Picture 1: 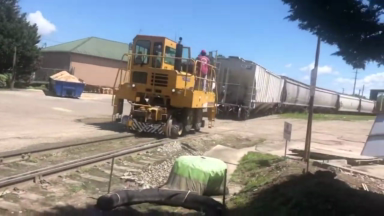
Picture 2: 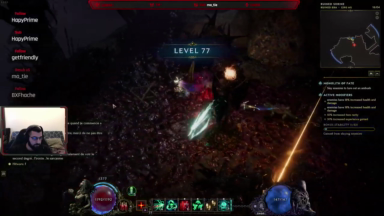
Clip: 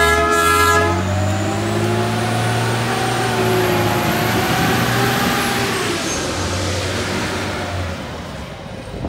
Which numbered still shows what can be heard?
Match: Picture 1